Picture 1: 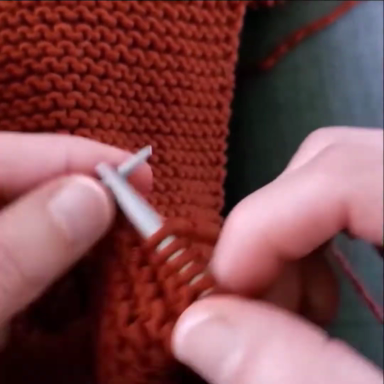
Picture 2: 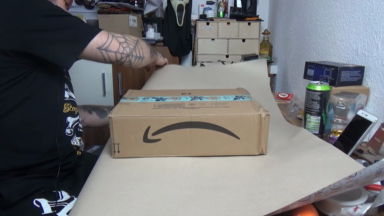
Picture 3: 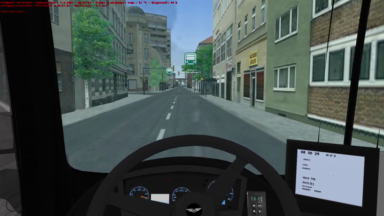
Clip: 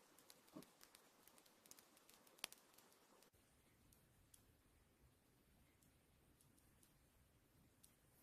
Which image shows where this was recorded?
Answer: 1